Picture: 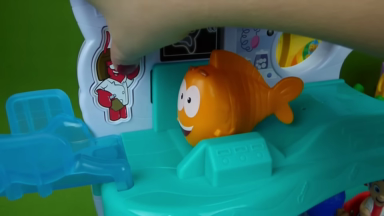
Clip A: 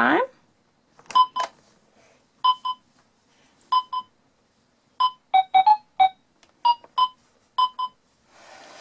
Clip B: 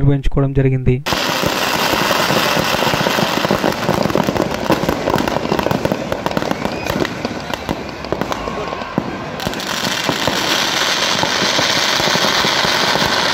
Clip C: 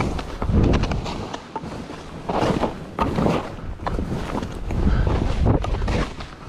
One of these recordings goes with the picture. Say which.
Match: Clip A